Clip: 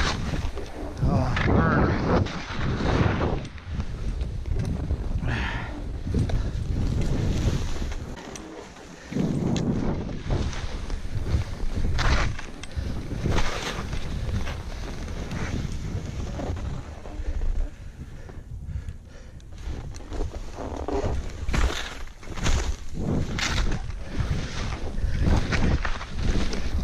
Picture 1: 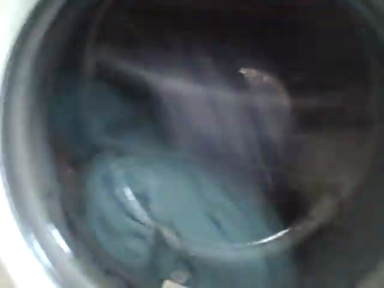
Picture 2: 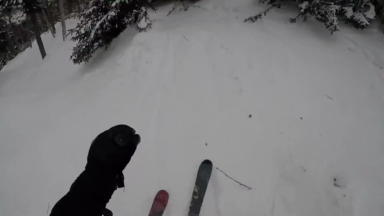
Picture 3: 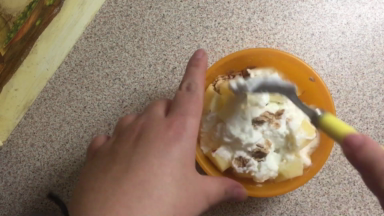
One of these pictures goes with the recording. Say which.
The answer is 2